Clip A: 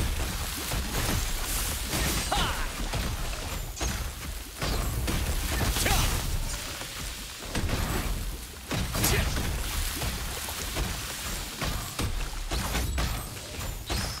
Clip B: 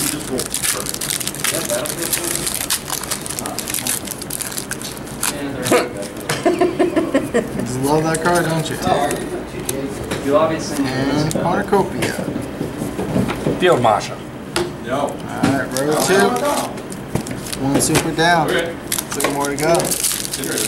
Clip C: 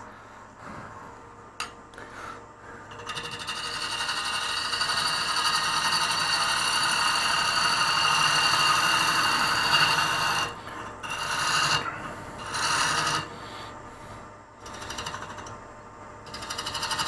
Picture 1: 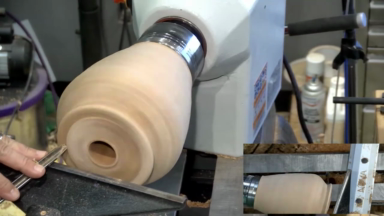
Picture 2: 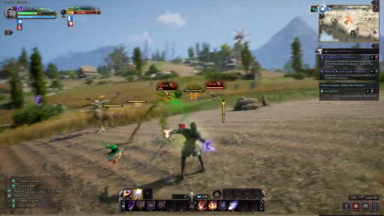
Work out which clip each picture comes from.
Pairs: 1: C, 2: A